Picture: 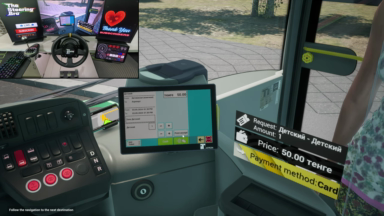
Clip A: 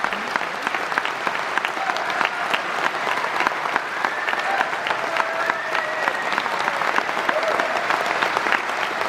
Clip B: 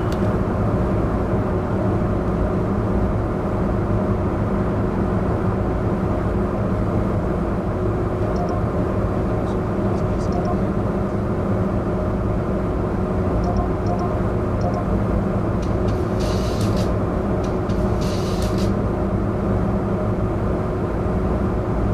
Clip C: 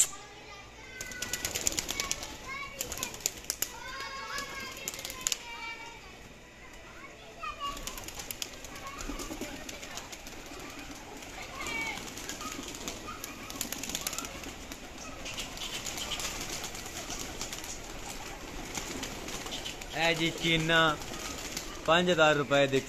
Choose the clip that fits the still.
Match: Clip B